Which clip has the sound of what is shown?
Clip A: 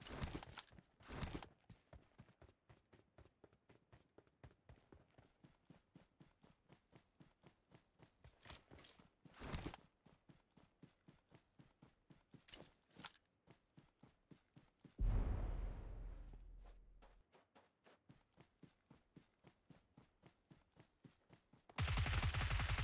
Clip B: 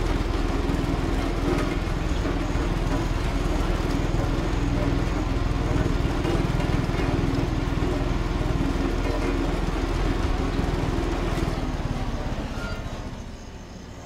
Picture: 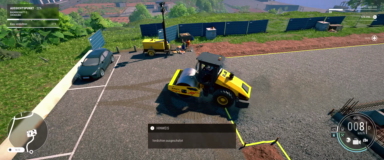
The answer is B